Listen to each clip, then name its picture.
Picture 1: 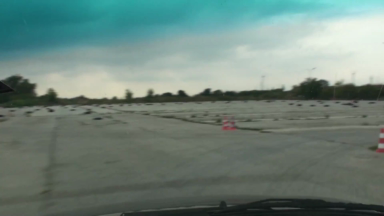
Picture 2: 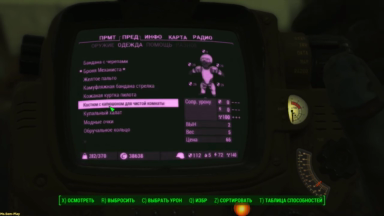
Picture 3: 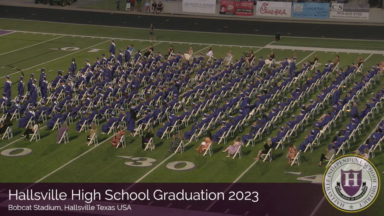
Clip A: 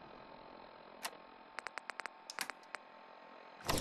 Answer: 2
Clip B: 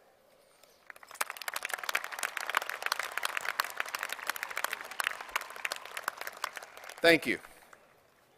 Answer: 3